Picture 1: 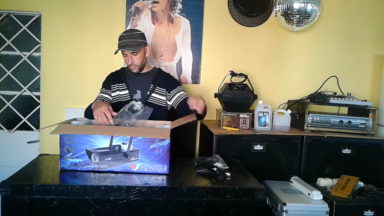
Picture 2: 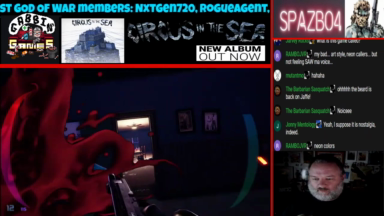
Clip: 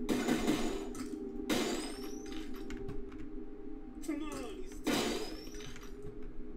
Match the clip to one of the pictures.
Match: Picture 2